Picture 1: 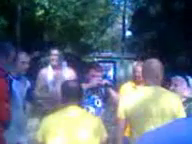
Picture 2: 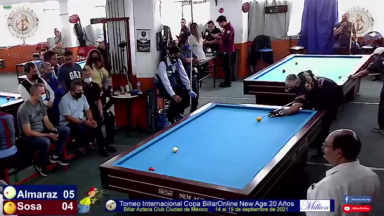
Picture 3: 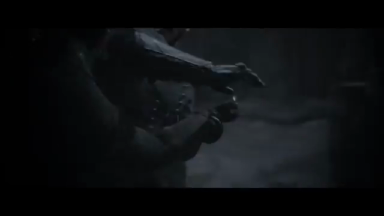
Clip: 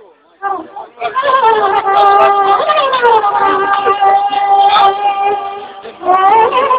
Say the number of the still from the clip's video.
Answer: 1